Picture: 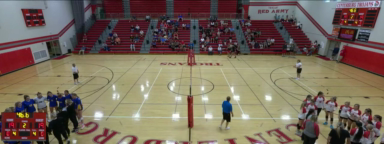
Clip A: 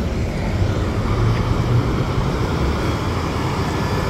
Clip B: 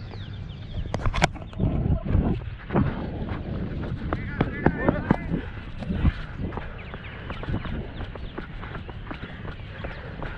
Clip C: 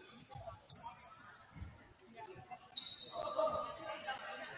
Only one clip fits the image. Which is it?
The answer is C